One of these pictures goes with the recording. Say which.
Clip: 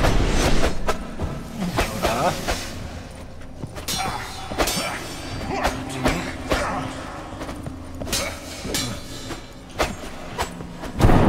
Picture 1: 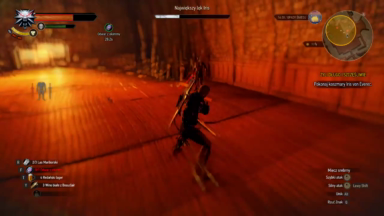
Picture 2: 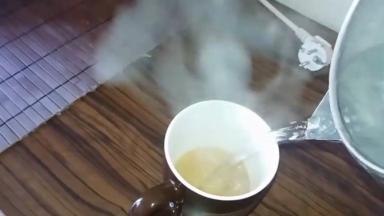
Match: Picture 1